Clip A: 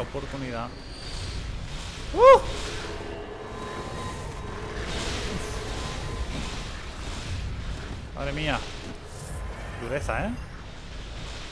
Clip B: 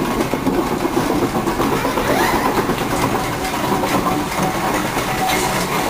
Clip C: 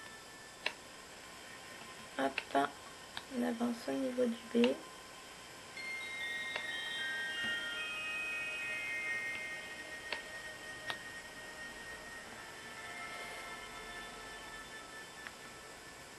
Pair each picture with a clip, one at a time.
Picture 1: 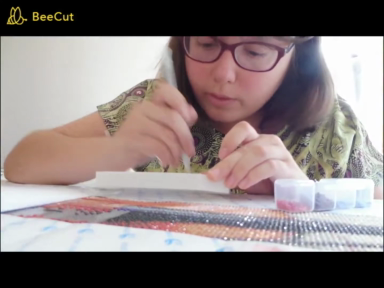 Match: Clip C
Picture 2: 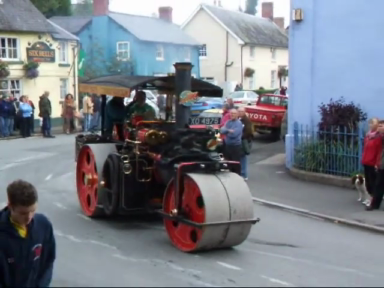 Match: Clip B